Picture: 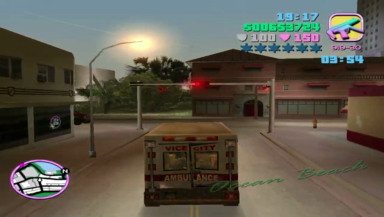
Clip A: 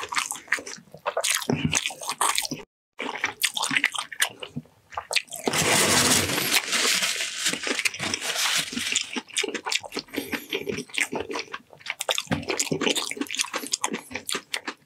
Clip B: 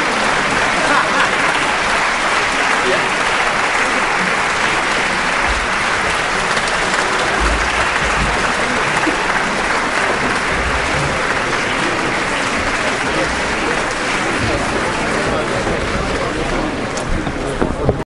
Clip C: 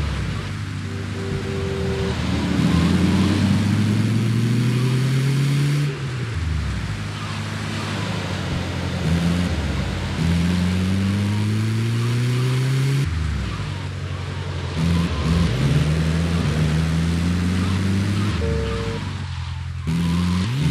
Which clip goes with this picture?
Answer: C